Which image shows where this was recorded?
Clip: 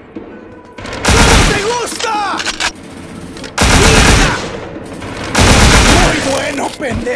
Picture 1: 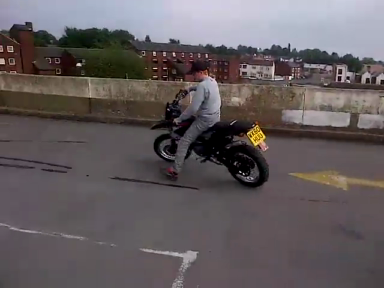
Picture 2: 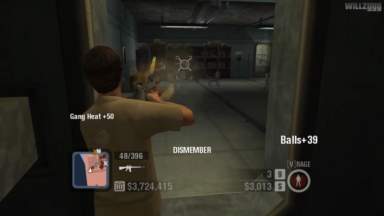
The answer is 2